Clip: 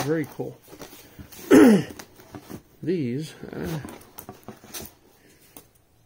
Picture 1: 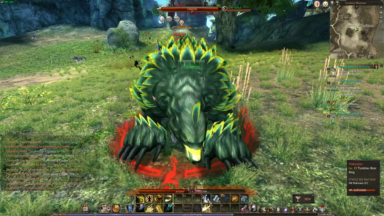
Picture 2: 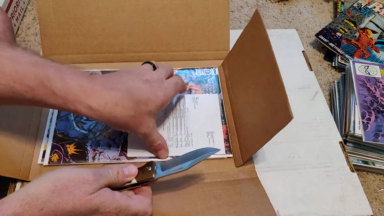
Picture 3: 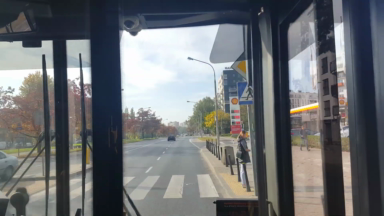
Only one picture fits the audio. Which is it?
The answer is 2